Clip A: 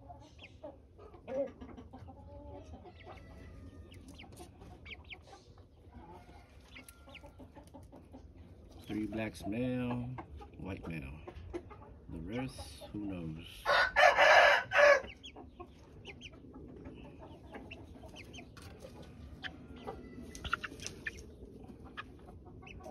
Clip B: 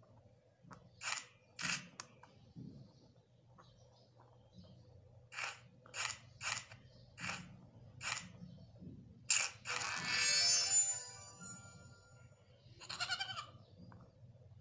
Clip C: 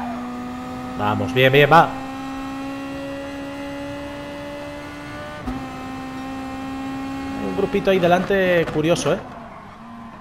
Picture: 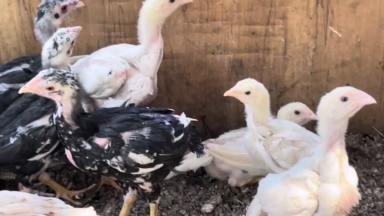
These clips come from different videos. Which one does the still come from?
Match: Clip A